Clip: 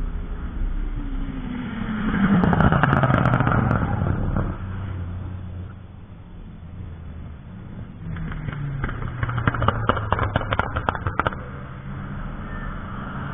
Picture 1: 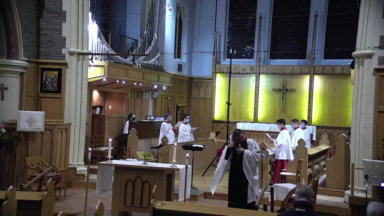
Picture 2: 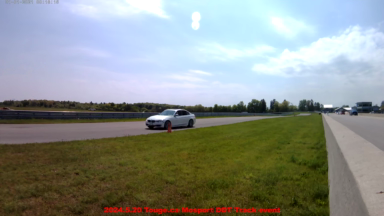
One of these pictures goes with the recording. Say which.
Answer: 2